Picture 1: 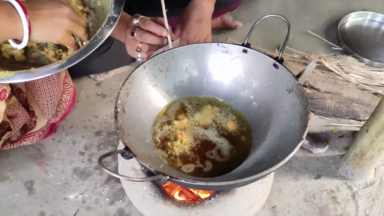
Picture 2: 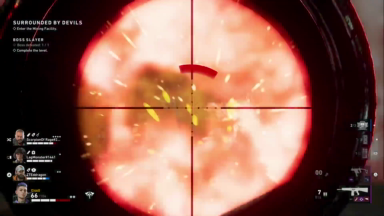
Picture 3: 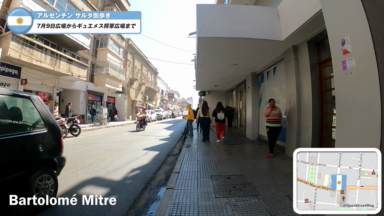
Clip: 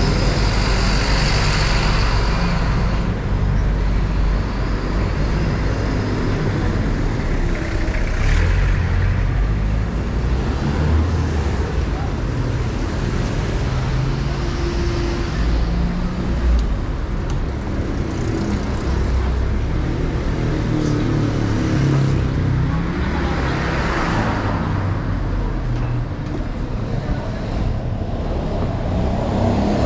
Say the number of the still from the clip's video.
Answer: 3